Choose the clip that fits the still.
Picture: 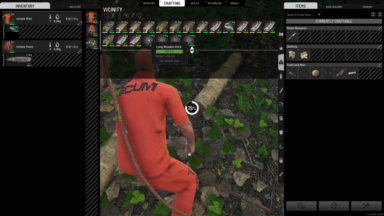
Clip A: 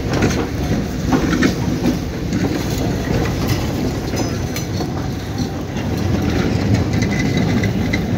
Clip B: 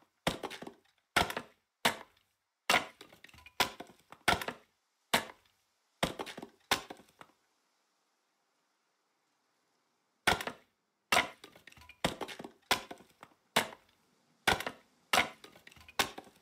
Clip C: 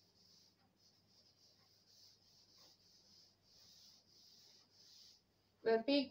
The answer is B